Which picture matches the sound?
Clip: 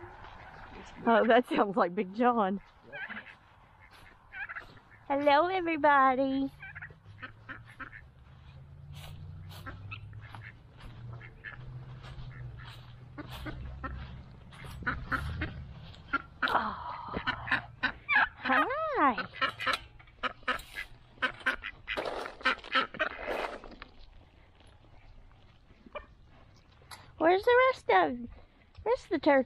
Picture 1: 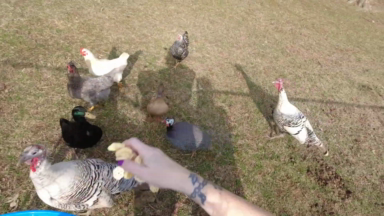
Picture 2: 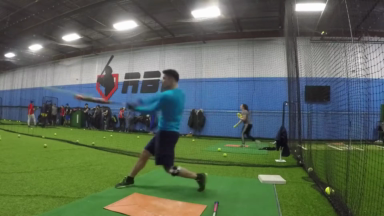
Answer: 1